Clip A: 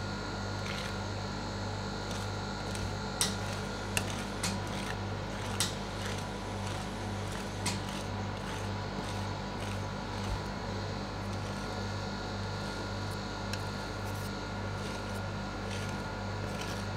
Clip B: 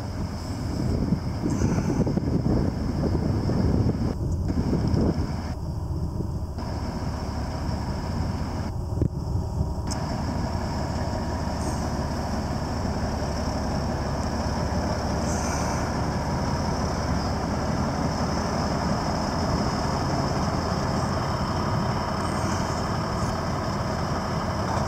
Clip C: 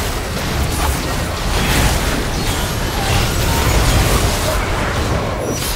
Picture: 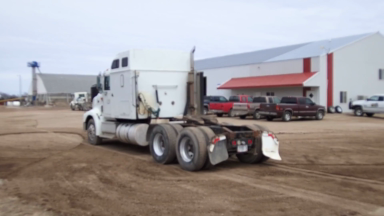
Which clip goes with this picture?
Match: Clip B